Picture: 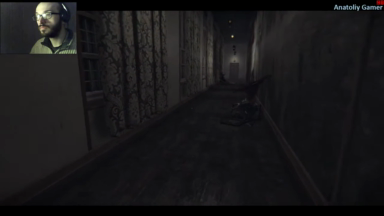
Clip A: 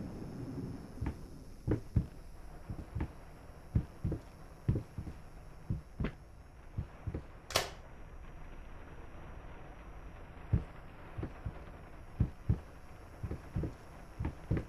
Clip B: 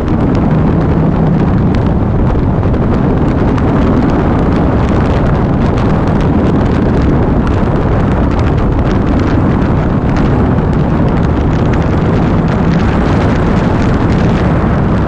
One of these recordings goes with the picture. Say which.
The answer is A